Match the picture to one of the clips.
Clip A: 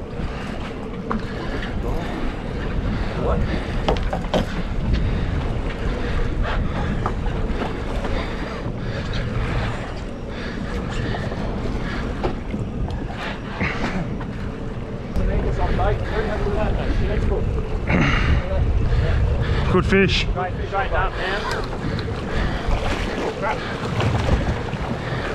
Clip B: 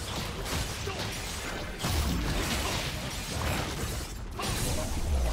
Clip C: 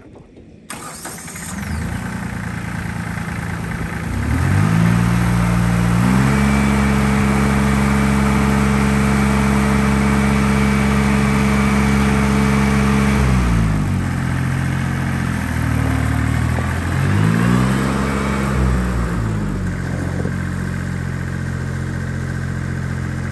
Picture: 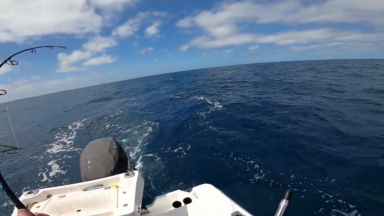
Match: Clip A